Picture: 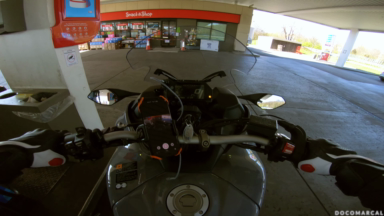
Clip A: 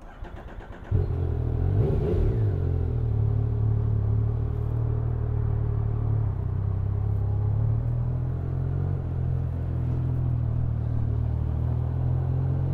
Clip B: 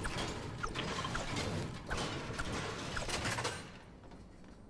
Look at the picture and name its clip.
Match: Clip A